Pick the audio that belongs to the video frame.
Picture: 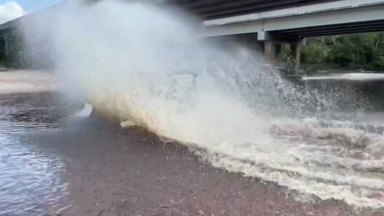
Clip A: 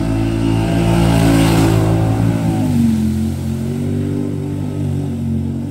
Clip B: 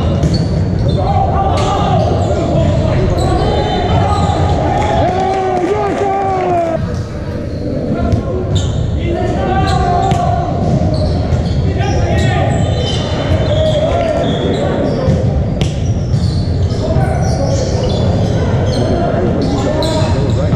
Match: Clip A